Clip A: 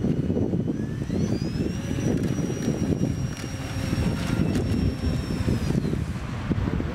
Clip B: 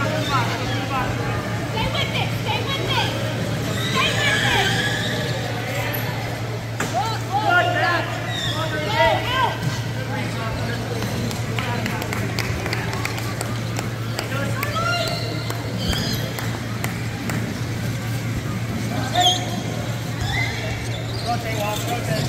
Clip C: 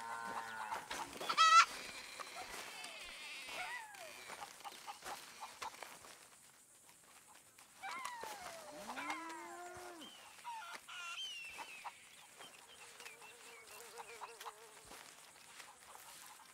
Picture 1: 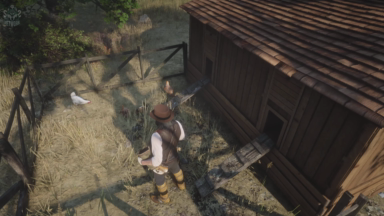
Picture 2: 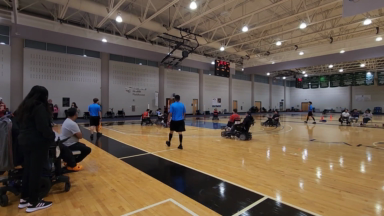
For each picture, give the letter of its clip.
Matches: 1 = C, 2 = B